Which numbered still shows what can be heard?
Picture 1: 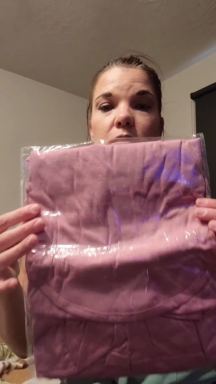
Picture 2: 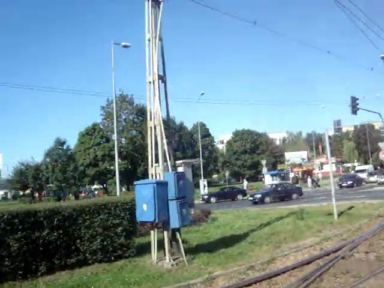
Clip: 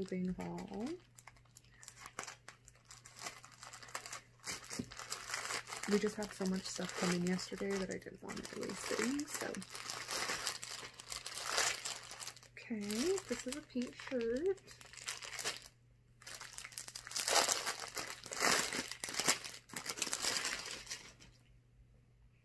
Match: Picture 1